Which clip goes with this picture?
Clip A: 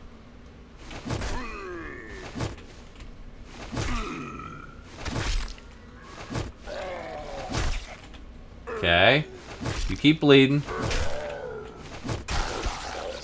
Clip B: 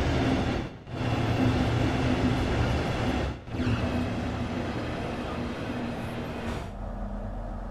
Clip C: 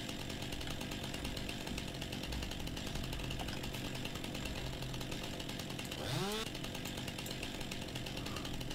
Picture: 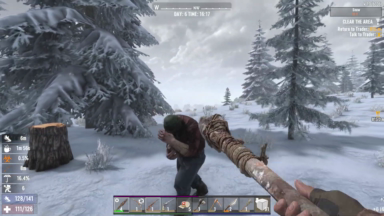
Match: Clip A